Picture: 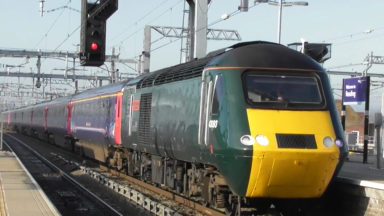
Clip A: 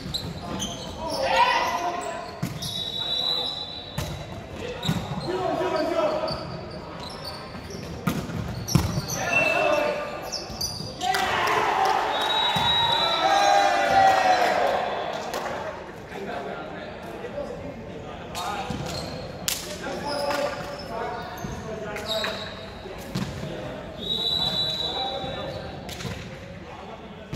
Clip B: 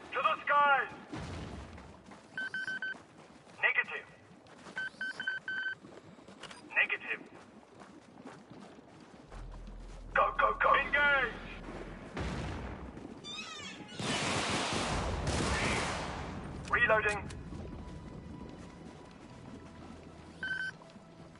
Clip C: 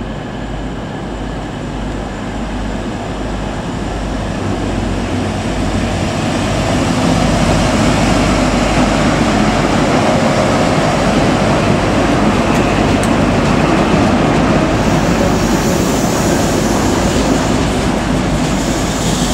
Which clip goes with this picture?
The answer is C